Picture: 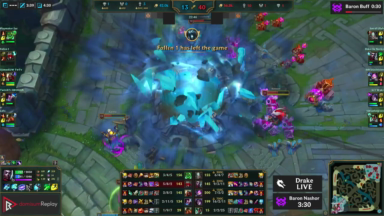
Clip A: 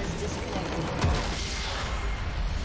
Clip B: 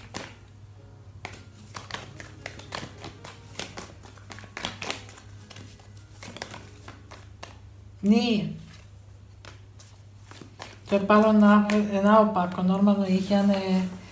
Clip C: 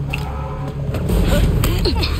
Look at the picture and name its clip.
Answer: A